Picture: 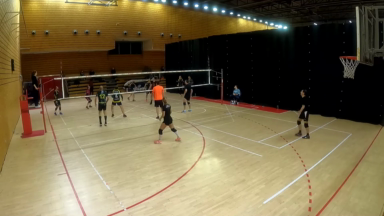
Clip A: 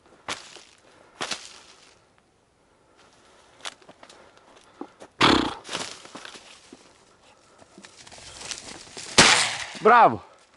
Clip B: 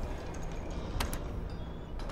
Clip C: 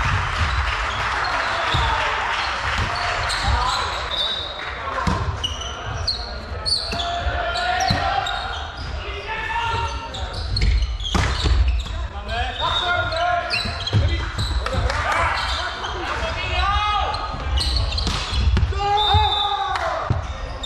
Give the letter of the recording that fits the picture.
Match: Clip C